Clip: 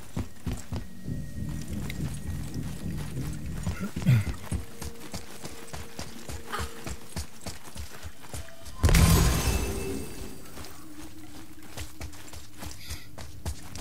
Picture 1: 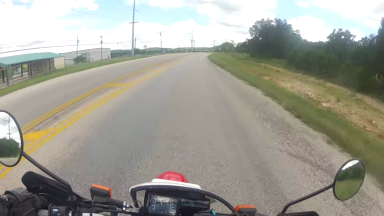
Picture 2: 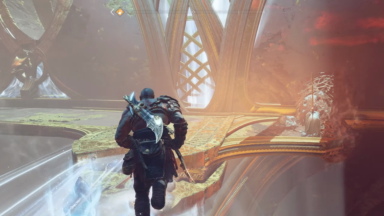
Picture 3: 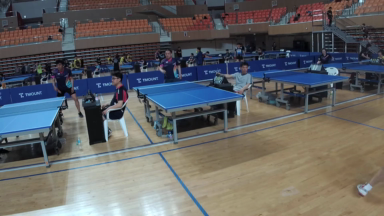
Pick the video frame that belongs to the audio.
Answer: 2